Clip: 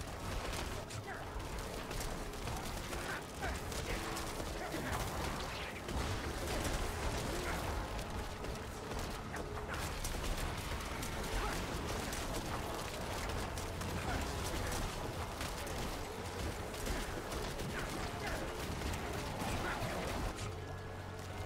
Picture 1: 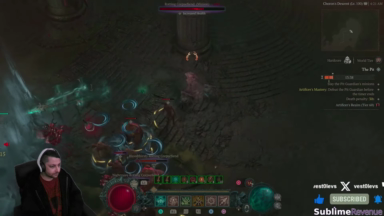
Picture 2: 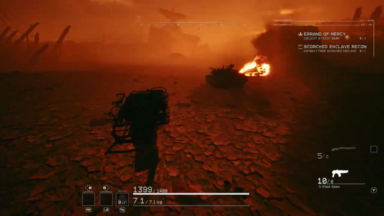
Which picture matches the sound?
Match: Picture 1